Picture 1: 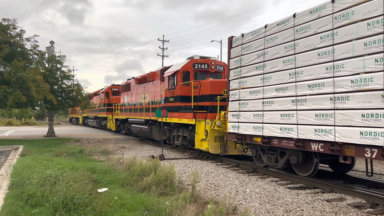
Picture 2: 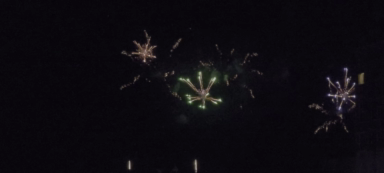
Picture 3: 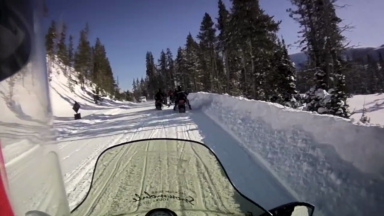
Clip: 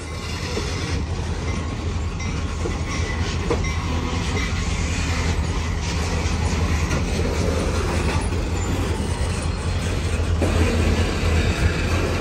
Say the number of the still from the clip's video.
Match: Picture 1